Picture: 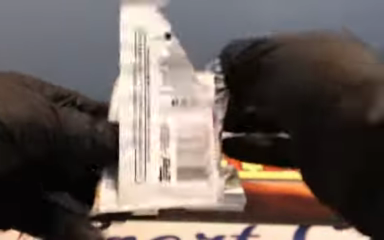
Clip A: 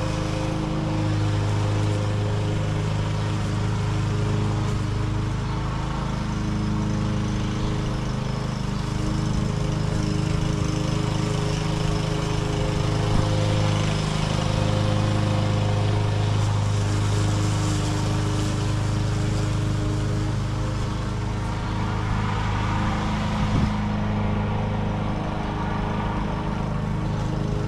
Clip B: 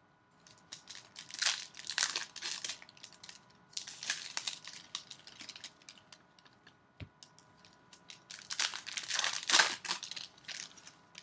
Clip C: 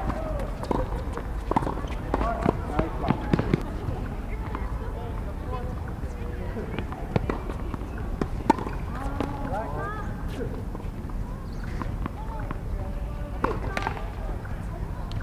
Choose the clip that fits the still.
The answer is B